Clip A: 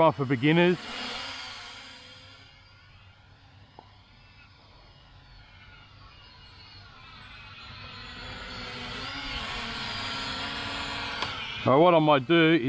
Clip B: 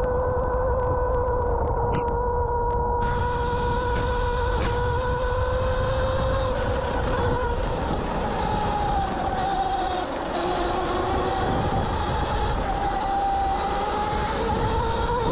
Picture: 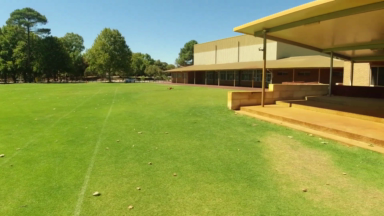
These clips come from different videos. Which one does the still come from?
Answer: A